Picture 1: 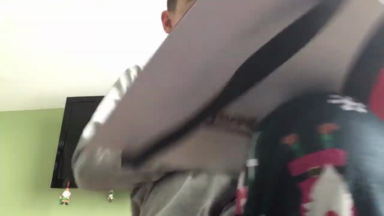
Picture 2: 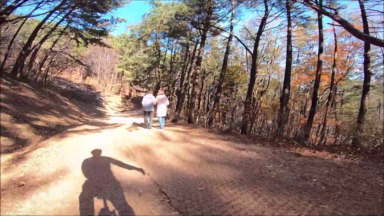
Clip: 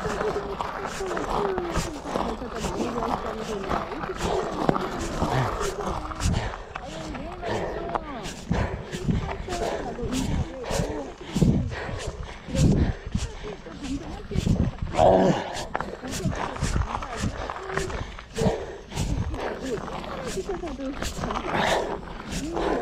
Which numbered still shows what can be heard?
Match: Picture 2